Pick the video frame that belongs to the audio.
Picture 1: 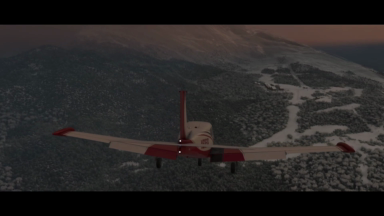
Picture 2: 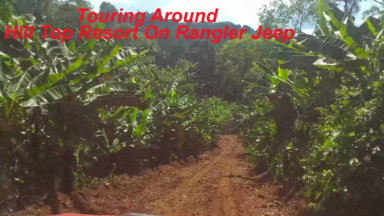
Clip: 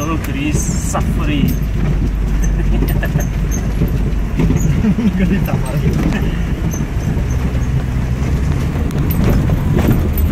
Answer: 2